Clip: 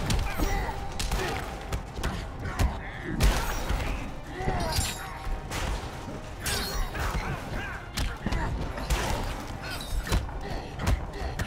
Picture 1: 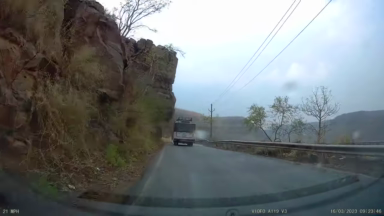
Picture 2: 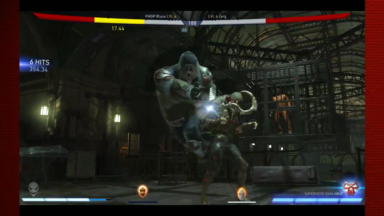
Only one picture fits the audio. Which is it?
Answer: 2